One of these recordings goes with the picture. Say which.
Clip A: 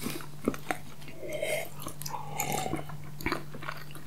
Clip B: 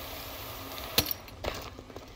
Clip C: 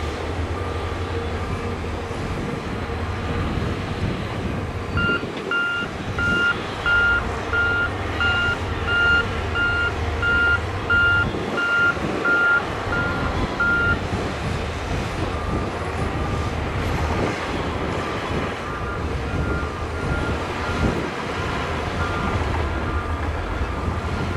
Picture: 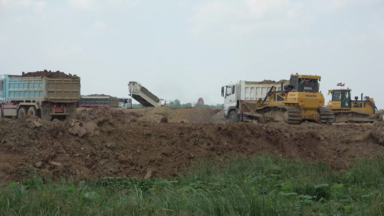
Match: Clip C